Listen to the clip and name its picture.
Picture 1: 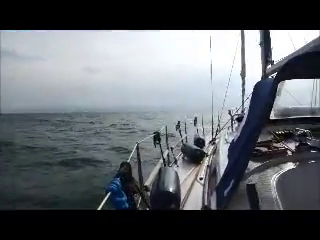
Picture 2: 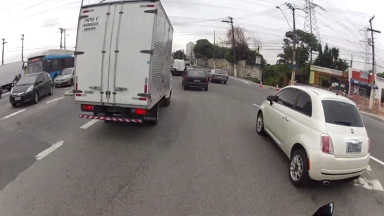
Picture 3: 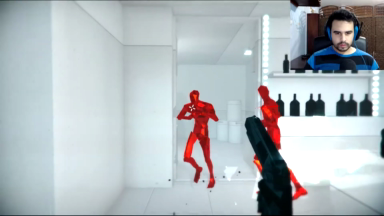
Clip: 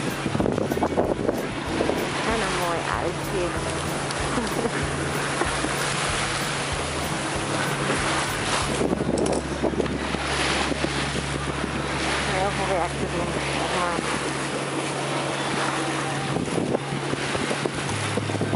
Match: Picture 1